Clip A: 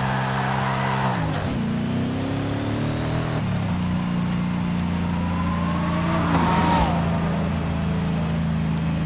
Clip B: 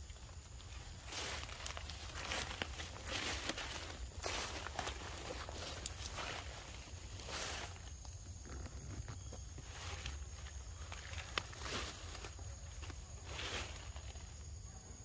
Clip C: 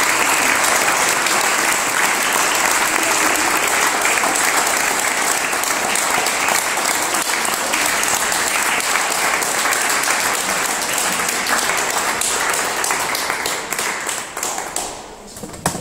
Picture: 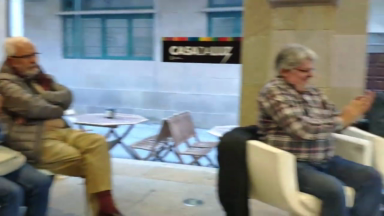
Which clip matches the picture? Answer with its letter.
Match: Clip C